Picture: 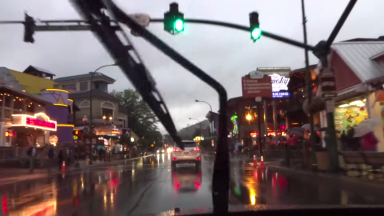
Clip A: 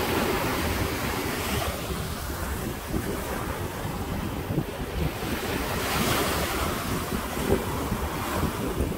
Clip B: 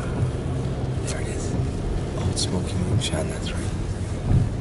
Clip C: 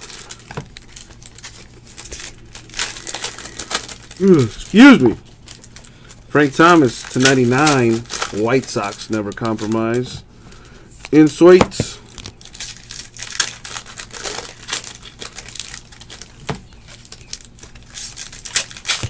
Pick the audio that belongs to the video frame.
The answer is B